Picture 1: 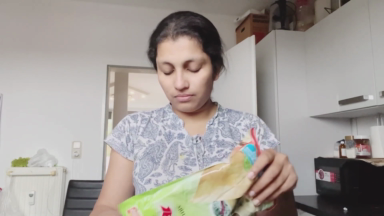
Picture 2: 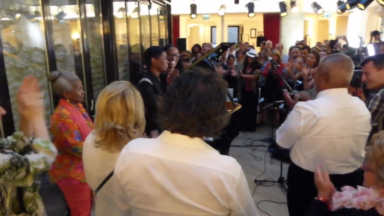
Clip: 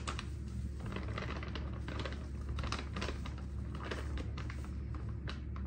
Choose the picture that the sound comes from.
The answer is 1